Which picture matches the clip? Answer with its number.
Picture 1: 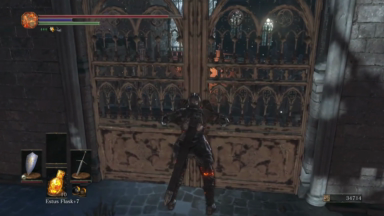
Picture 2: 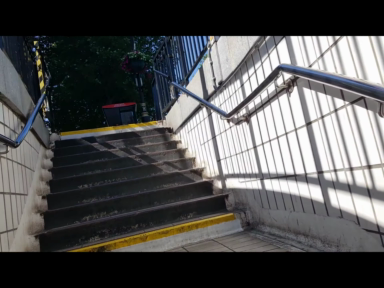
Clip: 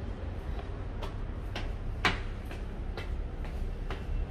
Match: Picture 2